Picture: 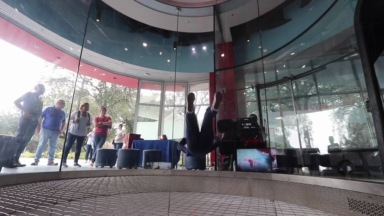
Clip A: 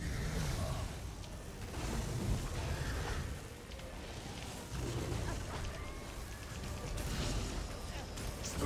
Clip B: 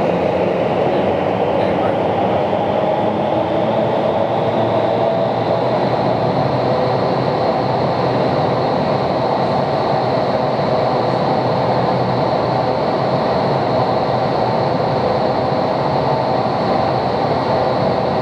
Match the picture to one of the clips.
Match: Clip B